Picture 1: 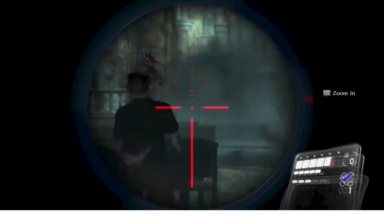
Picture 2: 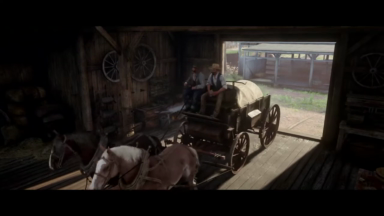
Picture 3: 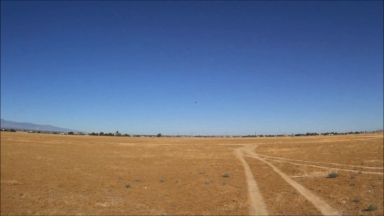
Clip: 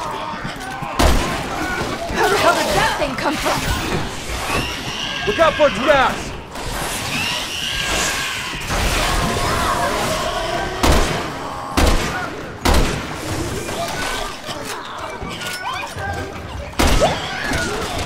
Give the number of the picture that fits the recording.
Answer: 1